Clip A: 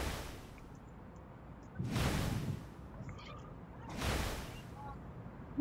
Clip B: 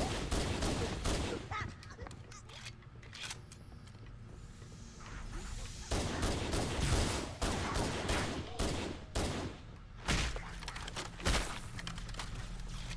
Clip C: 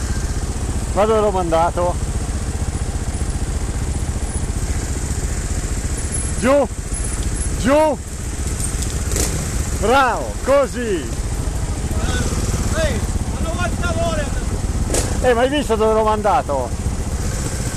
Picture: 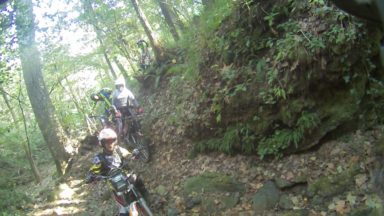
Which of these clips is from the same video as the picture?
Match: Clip C